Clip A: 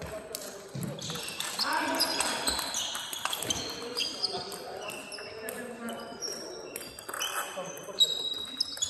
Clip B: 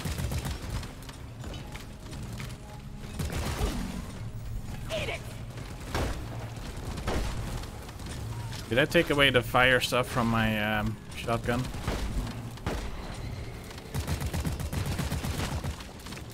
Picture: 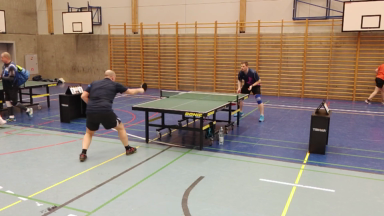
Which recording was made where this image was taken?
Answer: A